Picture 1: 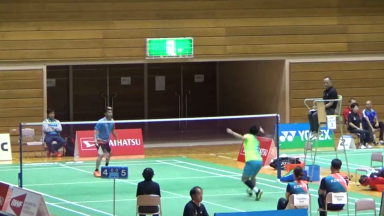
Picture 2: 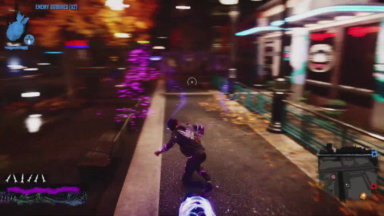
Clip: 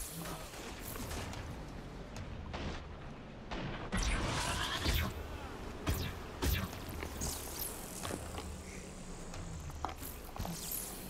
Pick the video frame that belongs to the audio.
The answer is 2